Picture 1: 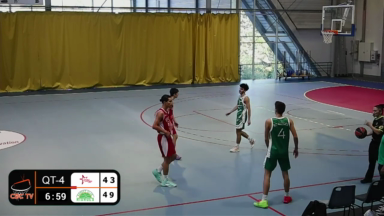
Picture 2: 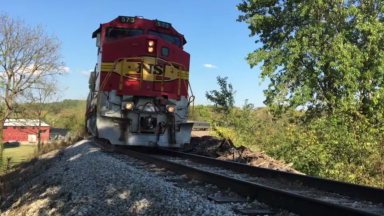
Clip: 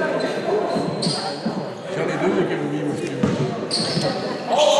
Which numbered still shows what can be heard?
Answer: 1